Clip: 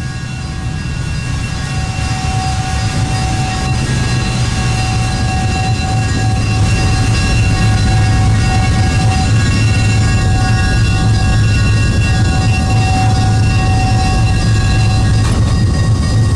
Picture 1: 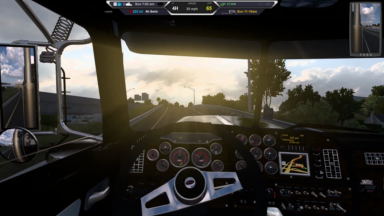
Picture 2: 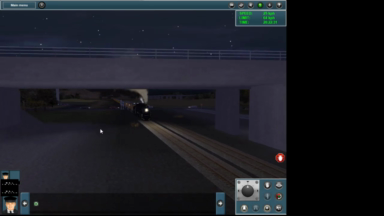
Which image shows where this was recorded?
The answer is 2